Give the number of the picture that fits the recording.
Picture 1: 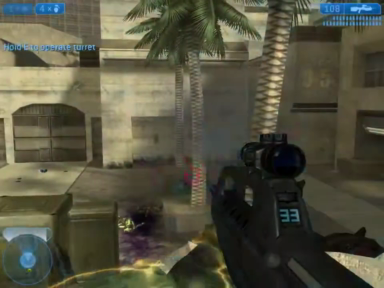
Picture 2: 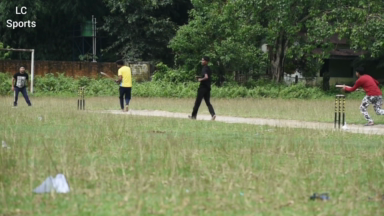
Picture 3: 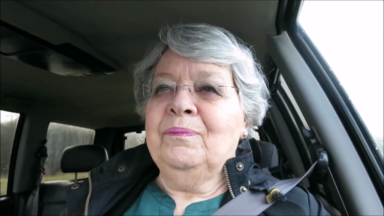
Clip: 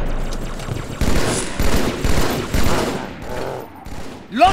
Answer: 1